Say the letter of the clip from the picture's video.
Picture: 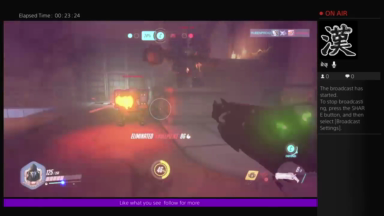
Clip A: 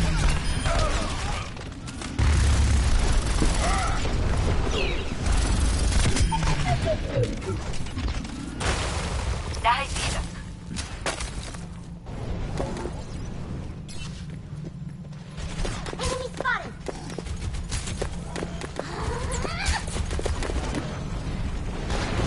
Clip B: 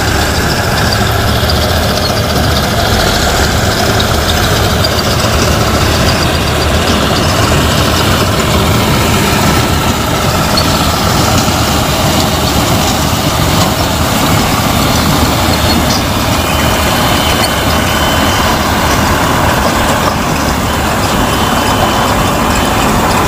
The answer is A